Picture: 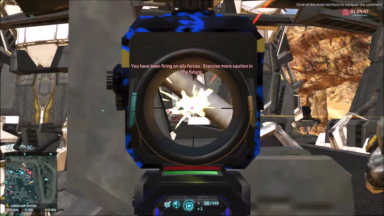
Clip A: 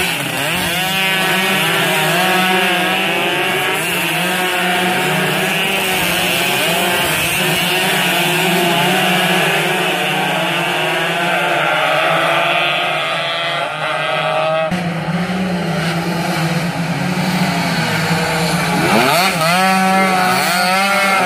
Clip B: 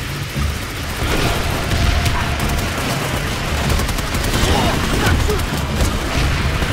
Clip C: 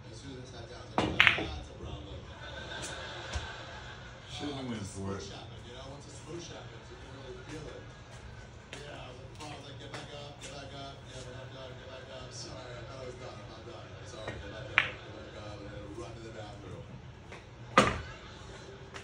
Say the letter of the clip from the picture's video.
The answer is B